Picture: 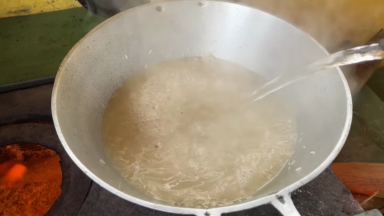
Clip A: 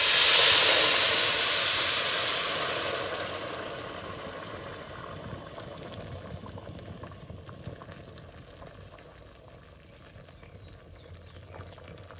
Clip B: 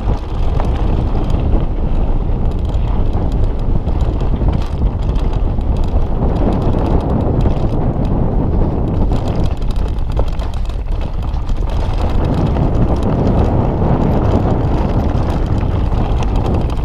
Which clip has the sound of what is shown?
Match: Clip A